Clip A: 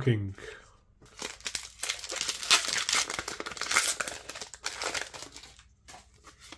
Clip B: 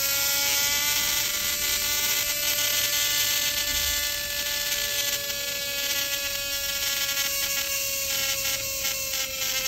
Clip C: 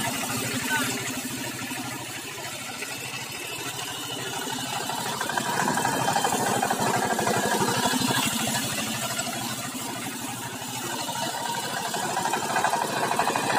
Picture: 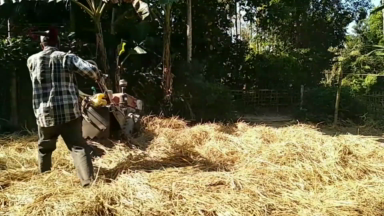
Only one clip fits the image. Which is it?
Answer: C